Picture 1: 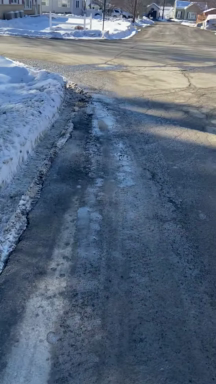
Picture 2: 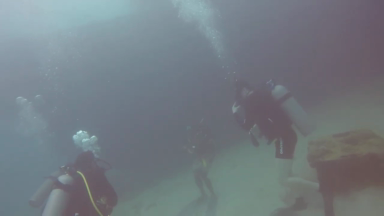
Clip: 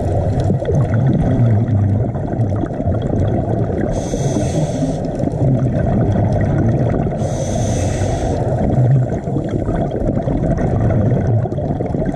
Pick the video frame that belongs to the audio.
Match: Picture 2